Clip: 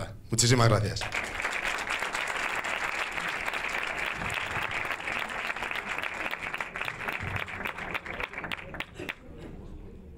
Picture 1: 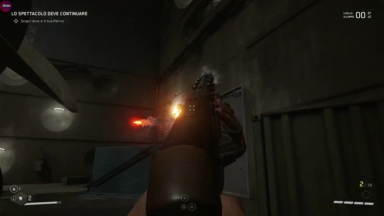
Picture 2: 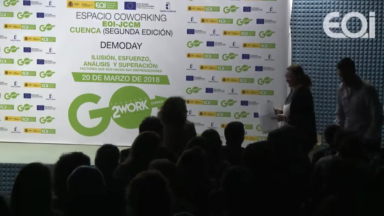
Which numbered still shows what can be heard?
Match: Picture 2